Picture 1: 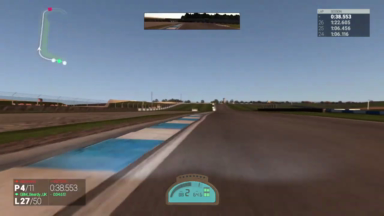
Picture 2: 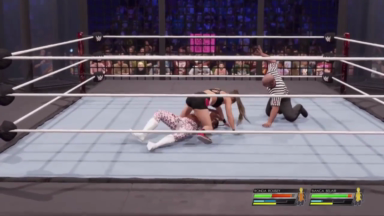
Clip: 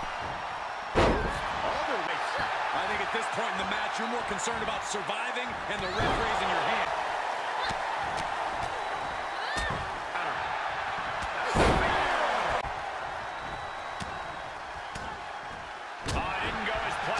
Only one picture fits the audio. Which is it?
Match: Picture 2